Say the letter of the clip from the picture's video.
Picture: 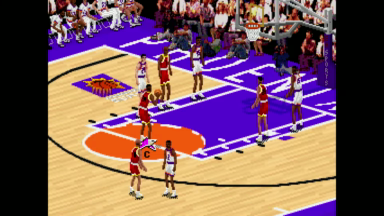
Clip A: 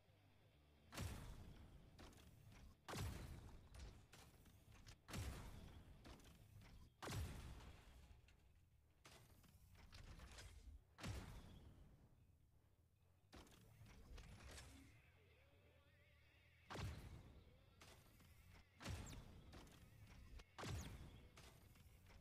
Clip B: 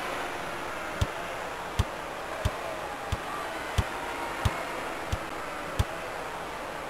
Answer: B